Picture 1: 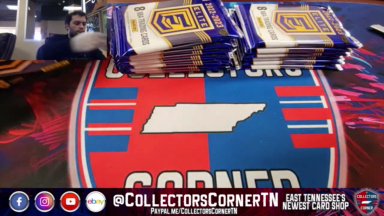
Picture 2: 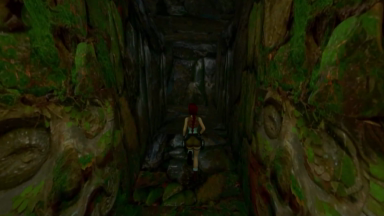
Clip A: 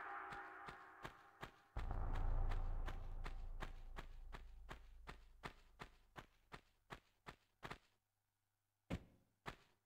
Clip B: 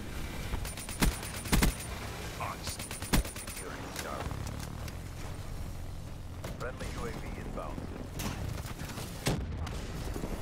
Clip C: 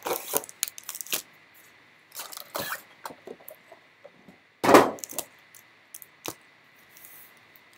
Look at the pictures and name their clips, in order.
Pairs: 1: C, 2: A